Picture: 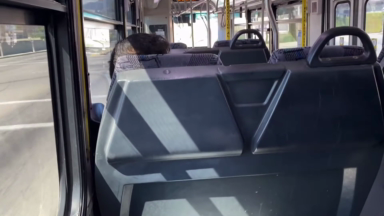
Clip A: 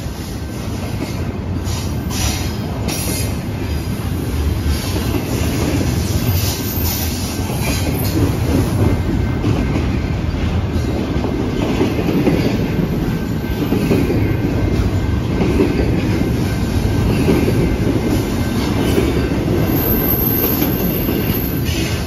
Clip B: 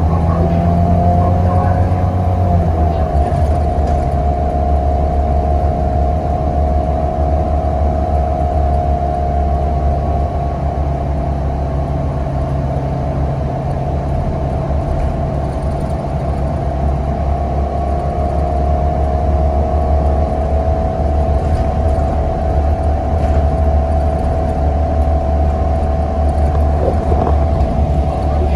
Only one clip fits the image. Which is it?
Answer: B